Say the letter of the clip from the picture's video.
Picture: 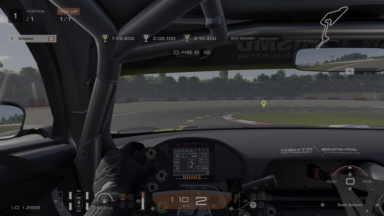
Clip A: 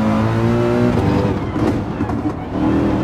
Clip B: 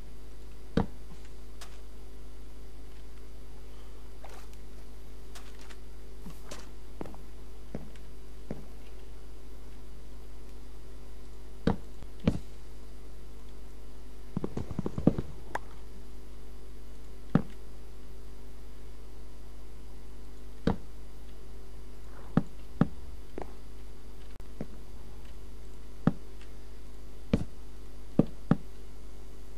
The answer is A